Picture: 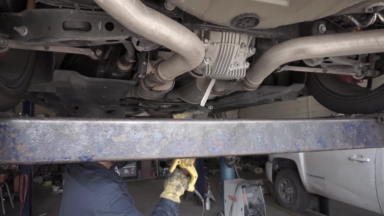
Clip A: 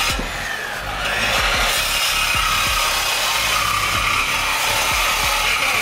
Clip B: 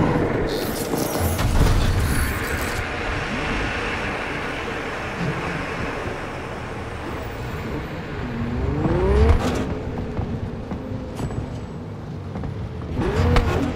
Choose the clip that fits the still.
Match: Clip A